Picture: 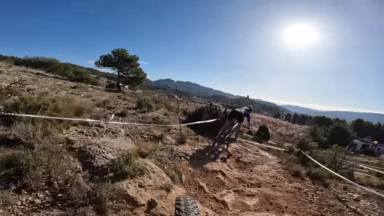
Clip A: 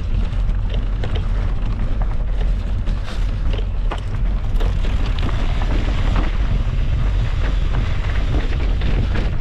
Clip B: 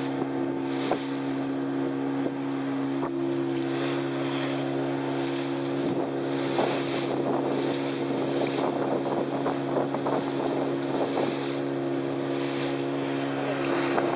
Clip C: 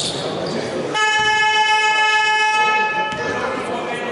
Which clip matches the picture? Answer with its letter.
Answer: A